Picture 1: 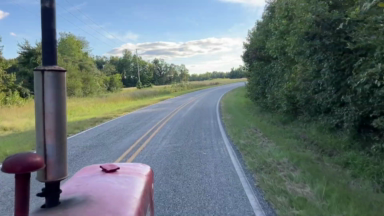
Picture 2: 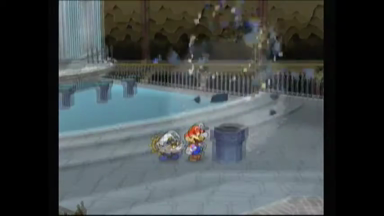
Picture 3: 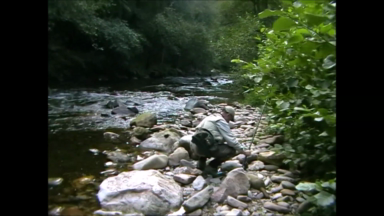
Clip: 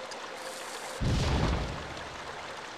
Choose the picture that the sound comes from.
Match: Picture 2